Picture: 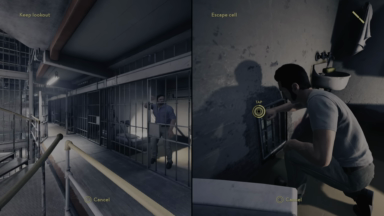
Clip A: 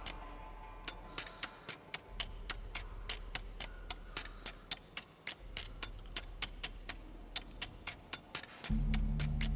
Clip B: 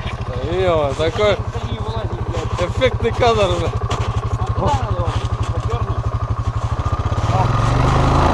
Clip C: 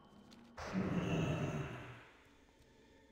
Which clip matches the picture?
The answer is A